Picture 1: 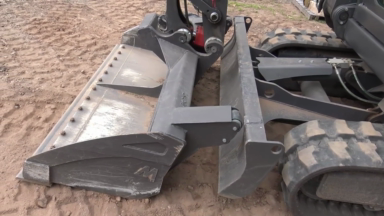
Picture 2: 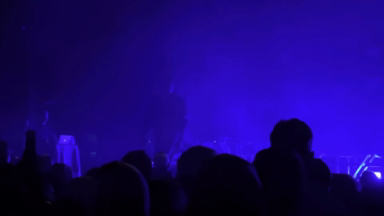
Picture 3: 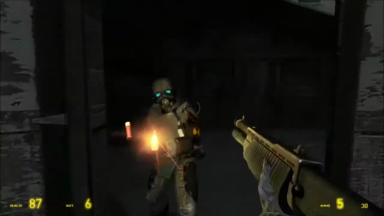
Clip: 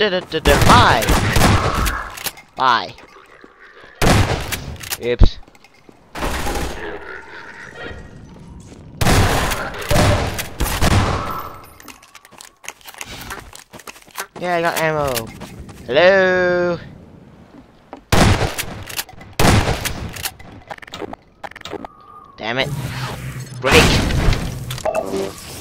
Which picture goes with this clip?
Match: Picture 3